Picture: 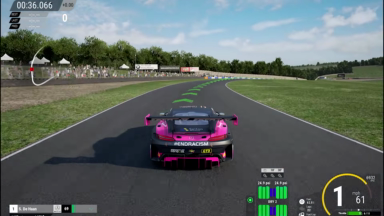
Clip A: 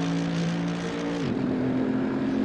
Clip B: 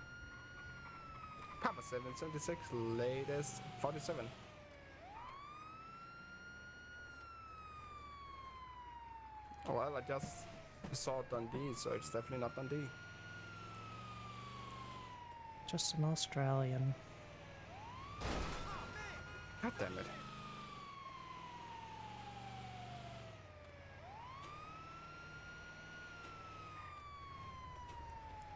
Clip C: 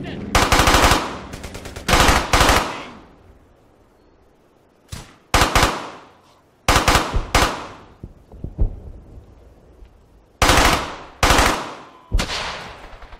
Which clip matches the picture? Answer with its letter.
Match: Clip A